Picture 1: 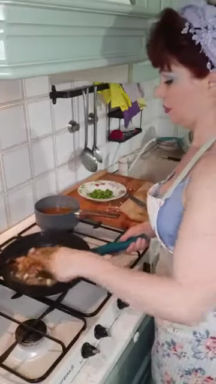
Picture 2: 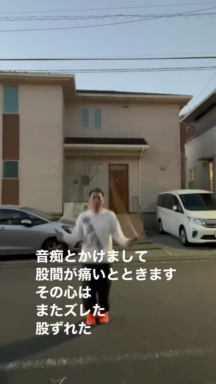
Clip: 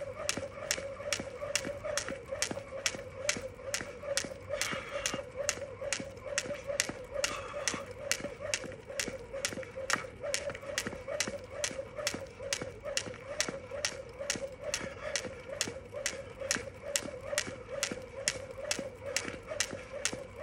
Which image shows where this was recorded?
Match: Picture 2